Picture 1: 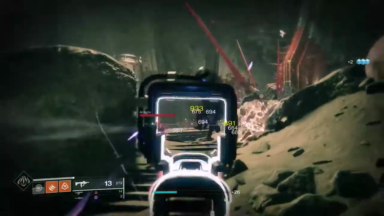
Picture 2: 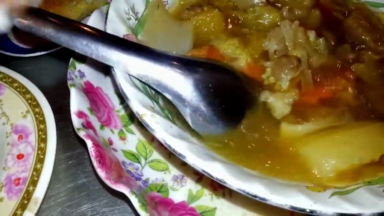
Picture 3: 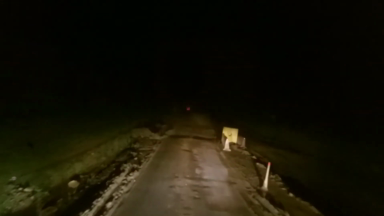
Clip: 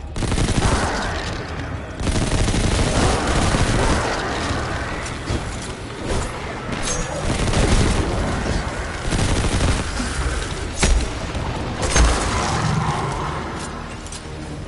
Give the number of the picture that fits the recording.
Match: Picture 1